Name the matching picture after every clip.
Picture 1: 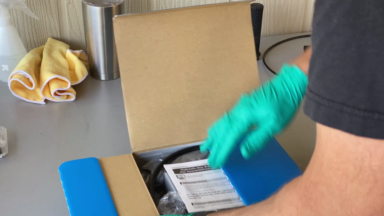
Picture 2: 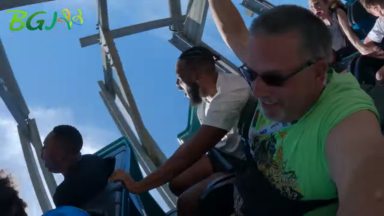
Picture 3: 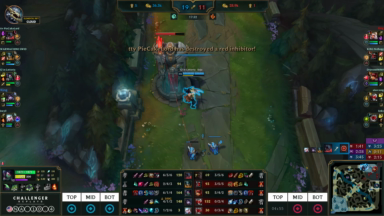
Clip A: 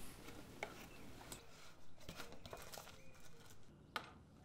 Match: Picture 1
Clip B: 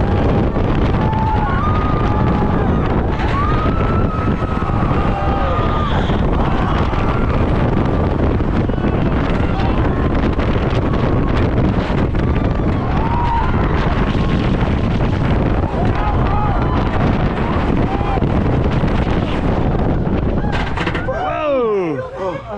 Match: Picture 2